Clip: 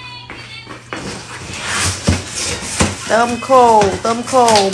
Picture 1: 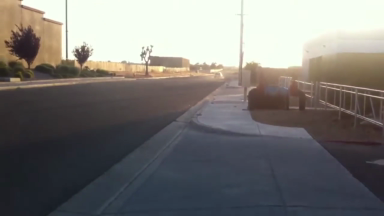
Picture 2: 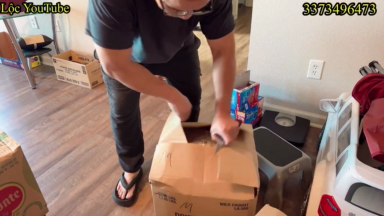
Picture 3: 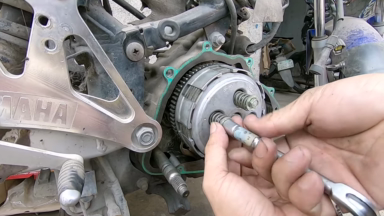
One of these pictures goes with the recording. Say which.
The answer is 2